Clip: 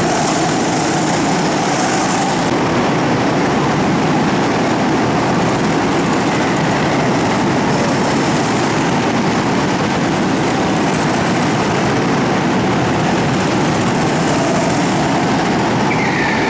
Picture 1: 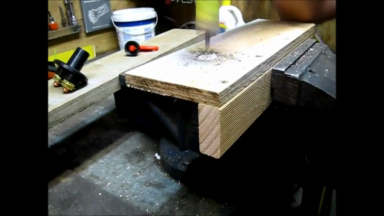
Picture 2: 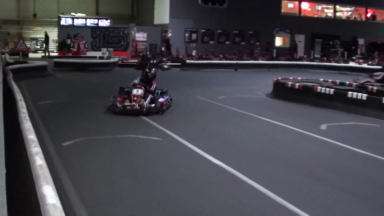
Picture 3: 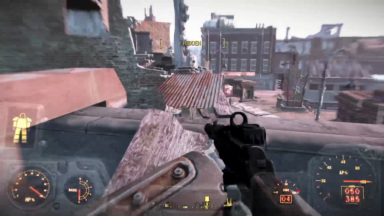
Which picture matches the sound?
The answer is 2